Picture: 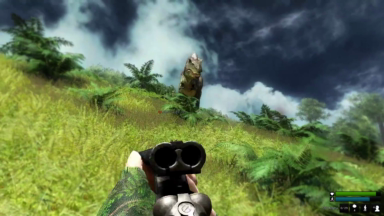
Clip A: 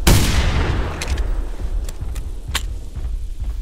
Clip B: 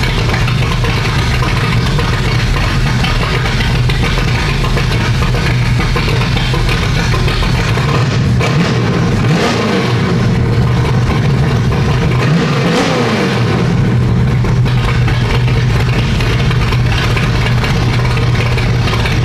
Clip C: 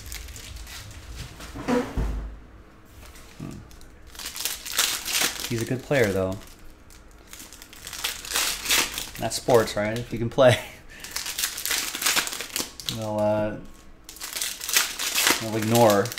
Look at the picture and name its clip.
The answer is A